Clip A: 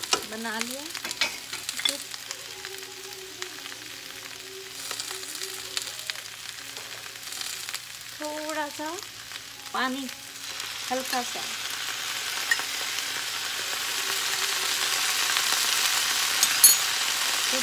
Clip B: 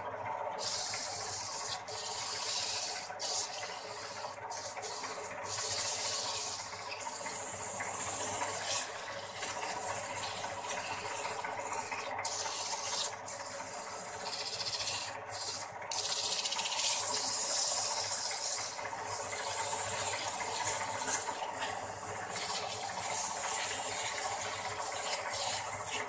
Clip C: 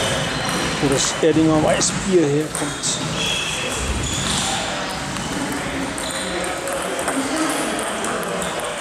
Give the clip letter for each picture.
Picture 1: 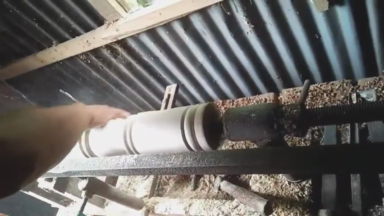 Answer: B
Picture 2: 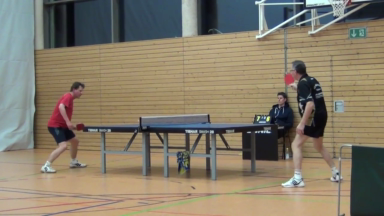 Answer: C